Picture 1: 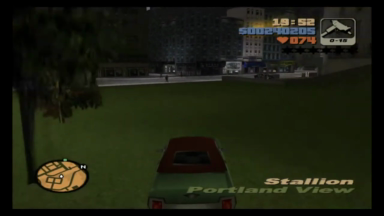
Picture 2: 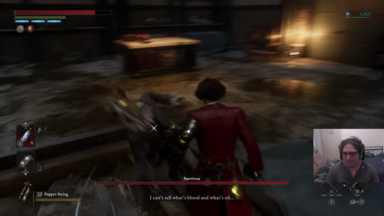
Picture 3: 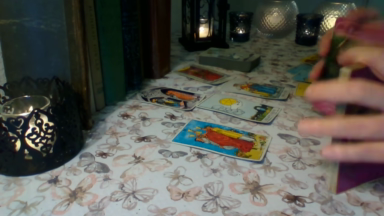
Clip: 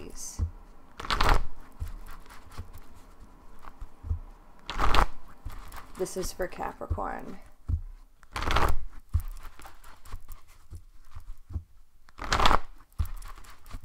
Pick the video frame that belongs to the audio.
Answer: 3